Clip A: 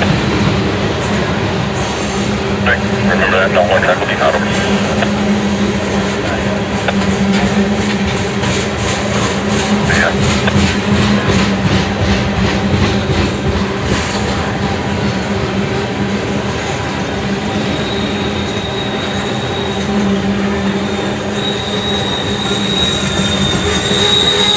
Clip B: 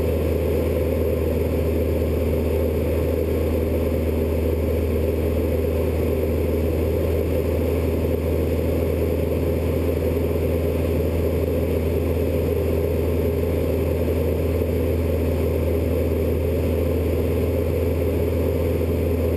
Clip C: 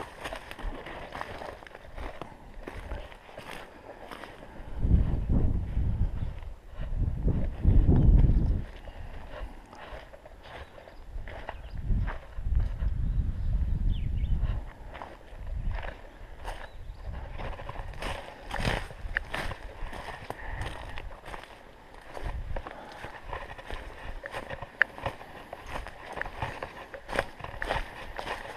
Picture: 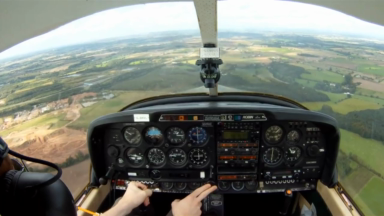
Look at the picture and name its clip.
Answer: B